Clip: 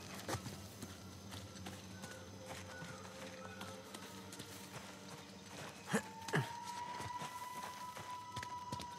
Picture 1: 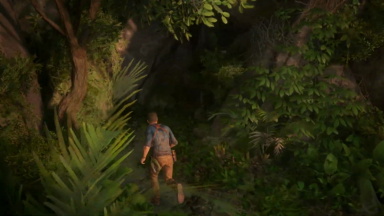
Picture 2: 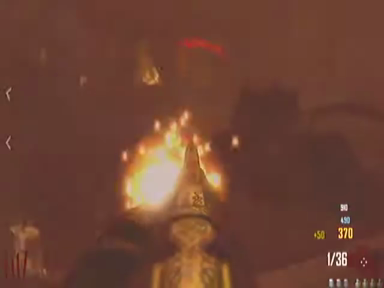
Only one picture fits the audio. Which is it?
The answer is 1